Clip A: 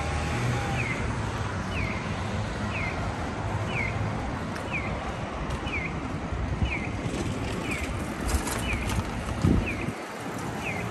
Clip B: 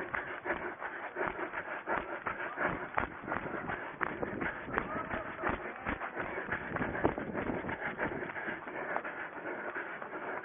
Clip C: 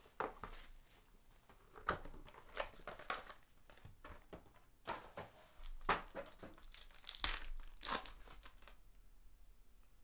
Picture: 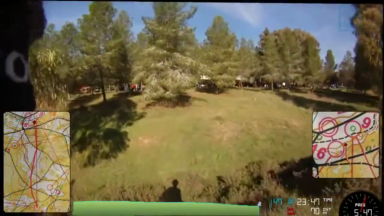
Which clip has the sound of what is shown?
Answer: B